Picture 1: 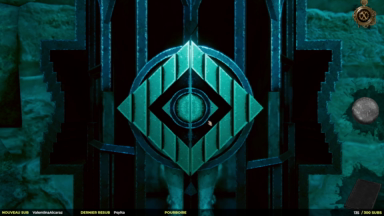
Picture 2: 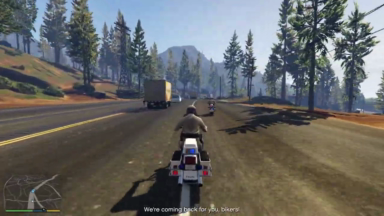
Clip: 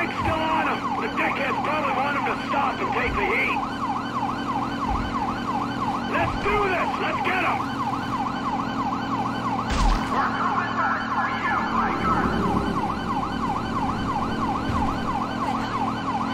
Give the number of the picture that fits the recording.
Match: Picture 2